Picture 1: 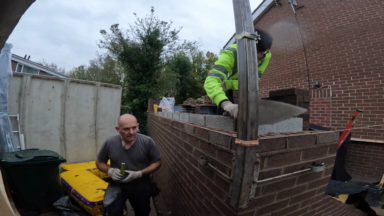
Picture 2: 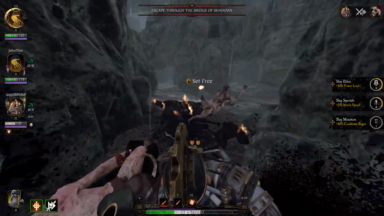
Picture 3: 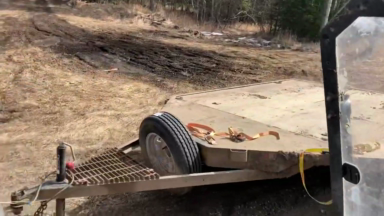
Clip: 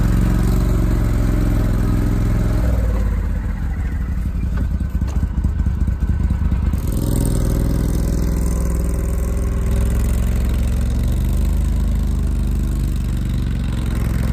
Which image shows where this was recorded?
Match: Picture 3